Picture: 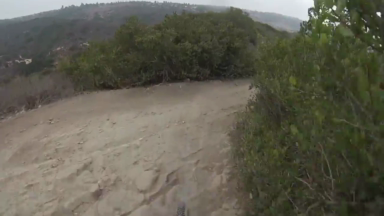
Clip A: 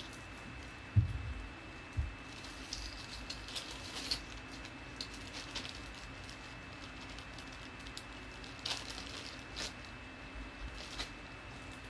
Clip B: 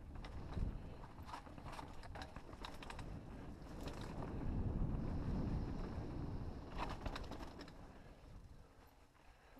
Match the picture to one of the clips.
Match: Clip B